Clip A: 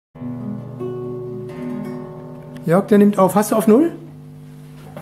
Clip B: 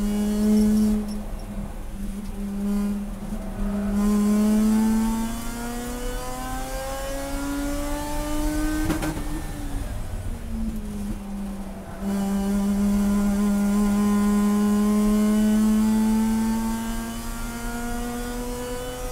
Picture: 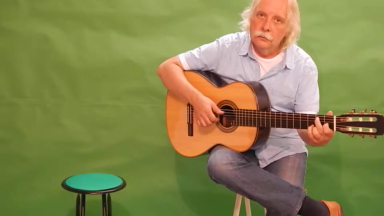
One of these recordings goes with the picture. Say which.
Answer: A